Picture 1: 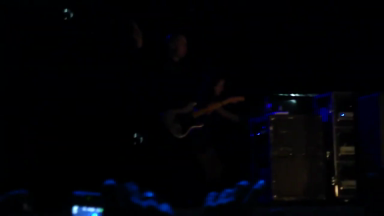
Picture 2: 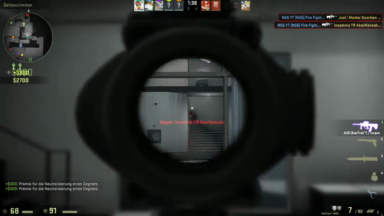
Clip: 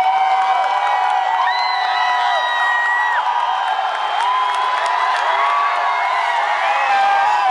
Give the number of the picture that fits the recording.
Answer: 1